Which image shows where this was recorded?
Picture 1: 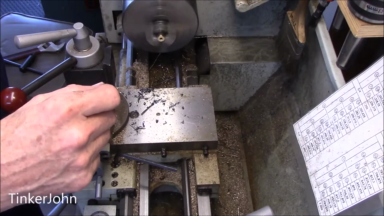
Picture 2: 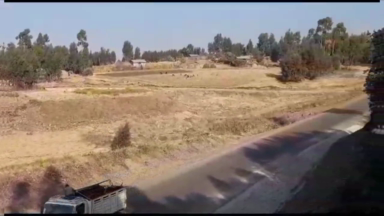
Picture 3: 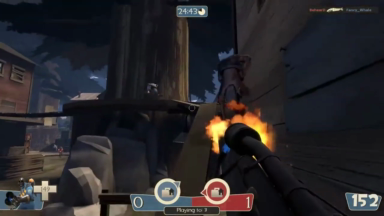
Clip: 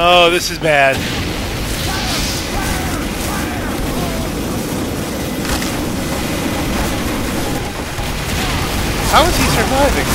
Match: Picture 3